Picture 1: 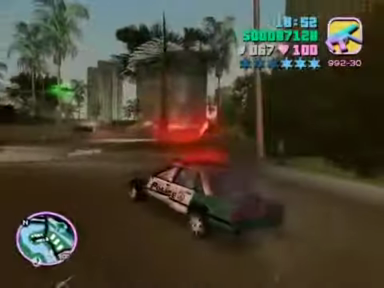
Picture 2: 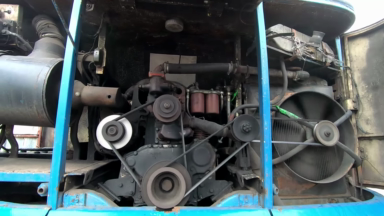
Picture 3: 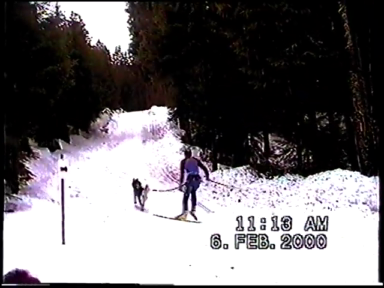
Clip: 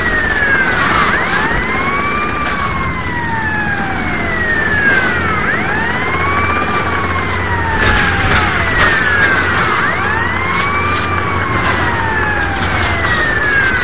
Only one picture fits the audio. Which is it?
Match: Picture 1